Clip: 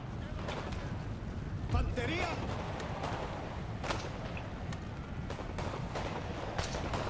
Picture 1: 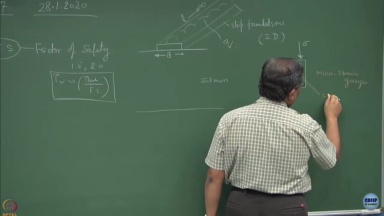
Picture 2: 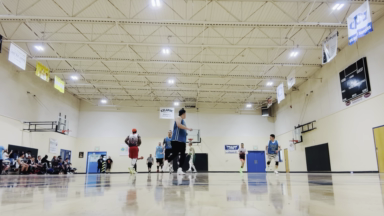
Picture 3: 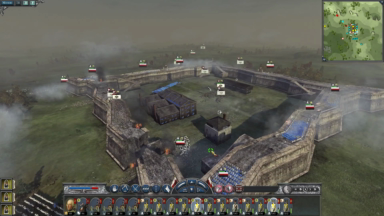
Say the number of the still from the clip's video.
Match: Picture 3